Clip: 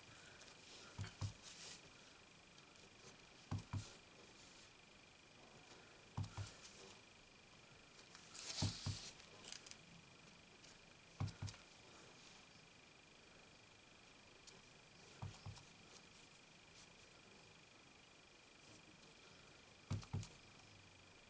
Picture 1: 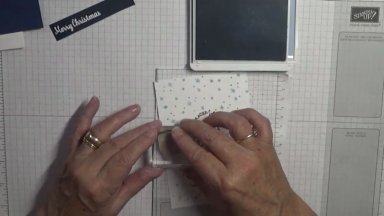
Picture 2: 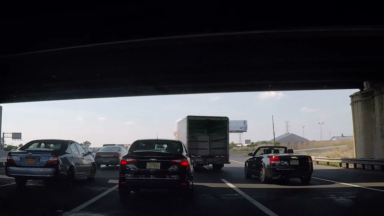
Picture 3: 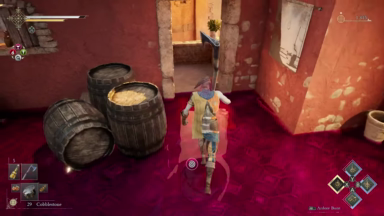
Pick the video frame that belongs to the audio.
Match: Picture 1